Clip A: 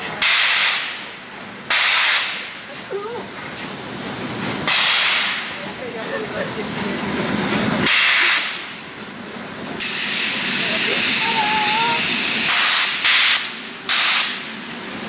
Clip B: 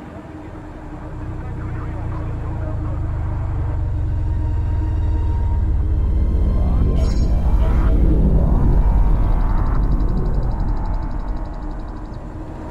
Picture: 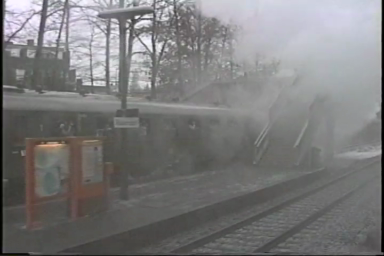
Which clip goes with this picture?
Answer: A